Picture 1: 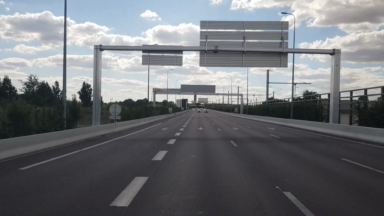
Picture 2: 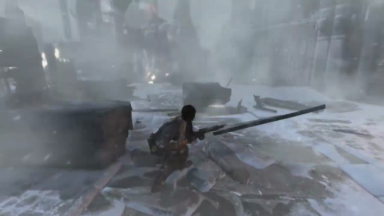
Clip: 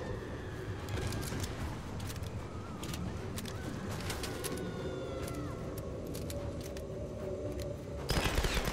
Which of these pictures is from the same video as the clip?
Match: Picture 2